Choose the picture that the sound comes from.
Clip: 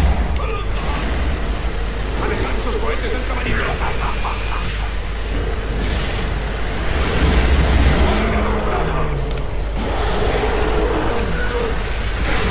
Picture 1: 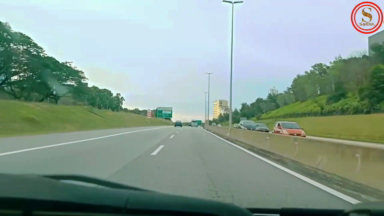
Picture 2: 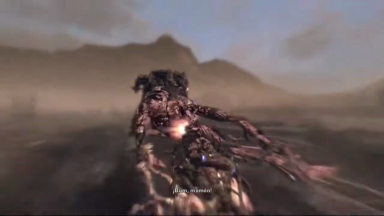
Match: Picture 2